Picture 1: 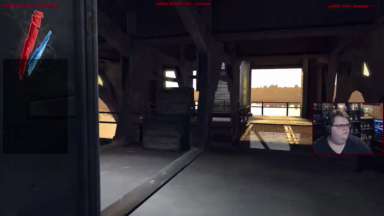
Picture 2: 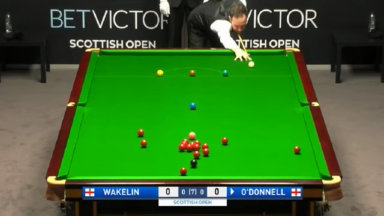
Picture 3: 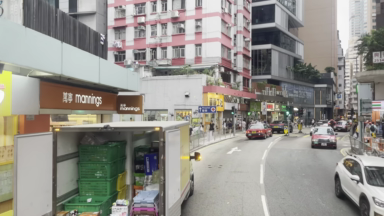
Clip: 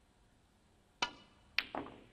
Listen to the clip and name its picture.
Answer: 2